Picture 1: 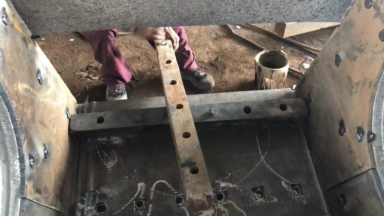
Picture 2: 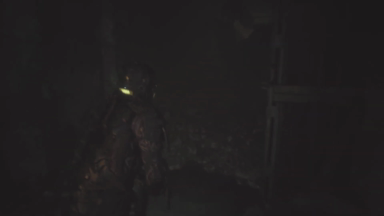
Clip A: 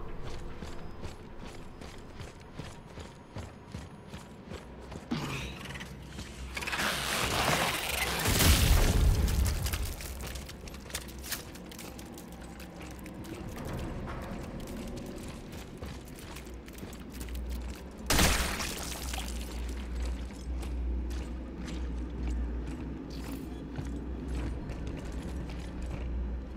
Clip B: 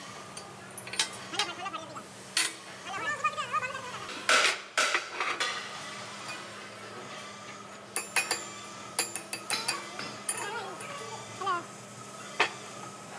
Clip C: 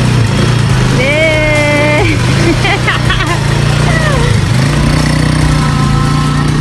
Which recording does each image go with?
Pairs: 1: B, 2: A